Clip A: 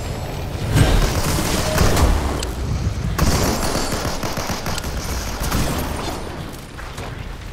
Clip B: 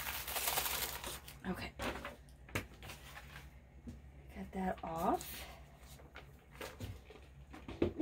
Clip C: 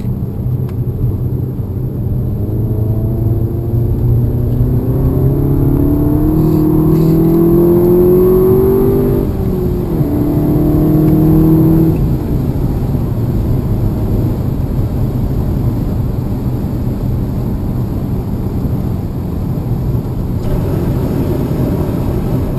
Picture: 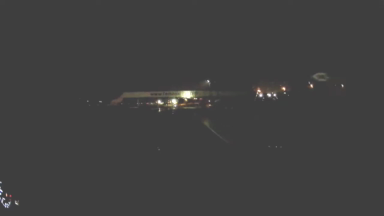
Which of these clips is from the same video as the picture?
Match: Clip C